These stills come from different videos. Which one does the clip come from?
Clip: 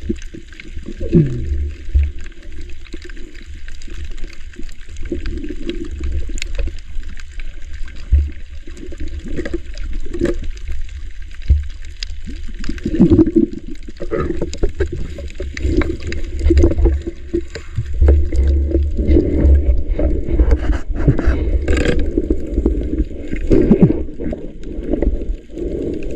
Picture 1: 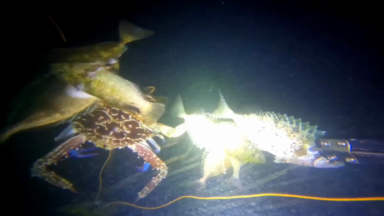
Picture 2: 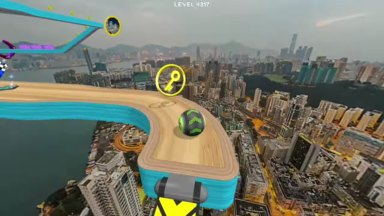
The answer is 1